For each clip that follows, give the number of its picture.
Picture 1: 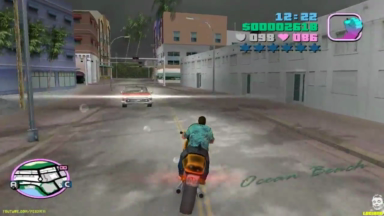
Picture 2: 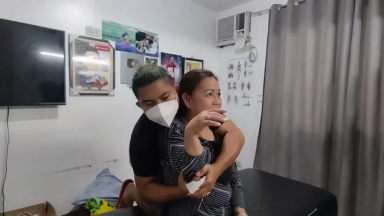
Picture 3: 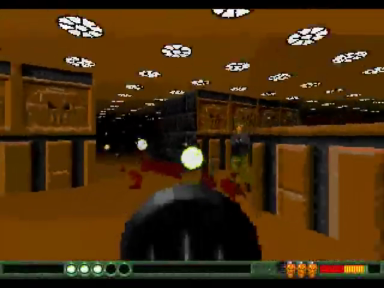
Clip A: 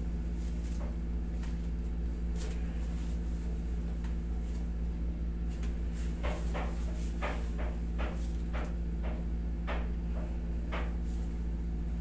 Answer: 2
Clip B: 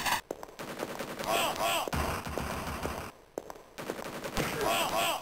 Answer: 3